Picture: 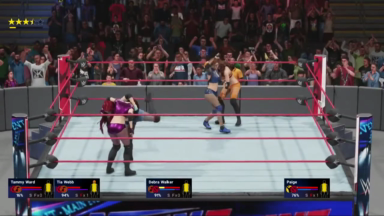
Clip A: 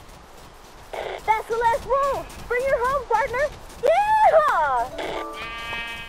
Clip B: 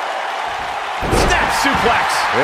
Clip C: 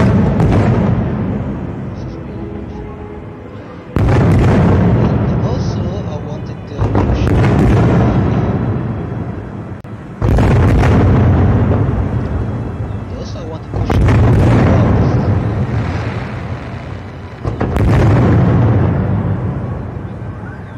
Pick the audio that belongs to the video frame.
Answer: B